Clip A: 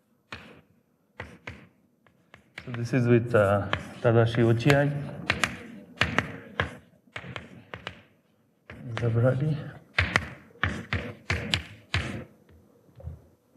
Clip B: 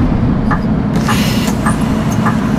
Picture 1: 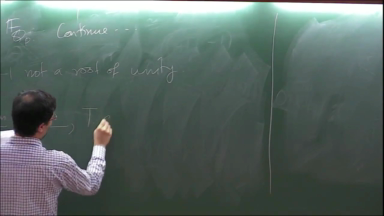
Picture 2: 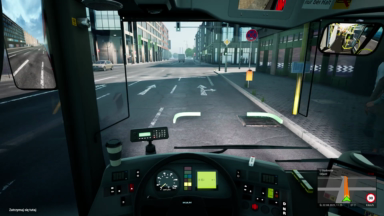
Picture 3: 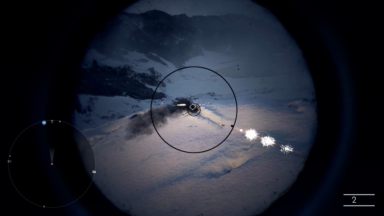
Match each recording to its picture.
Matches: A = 1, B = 2